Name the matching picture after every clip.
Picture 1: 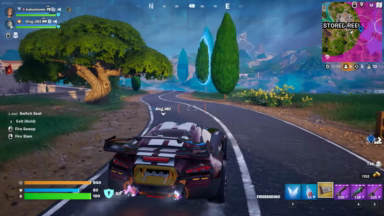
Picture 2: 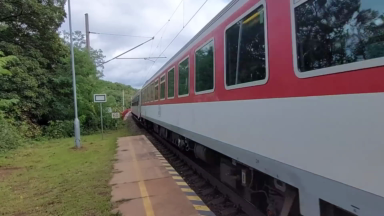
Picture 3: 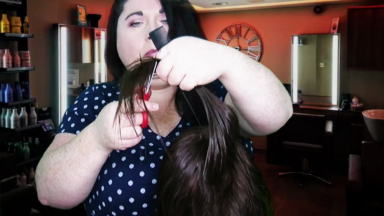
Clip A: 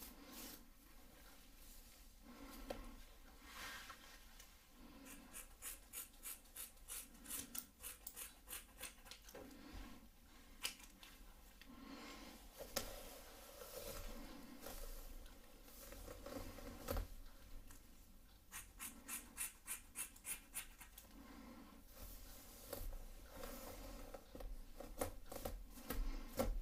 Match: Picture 3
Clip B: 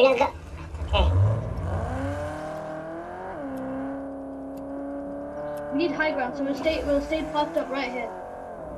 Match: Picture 1